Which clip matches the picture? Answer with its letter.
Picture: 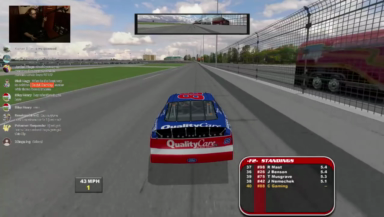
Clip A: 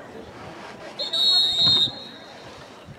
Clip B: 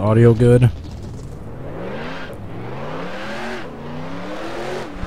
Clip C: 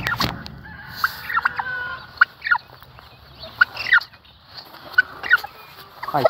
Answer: B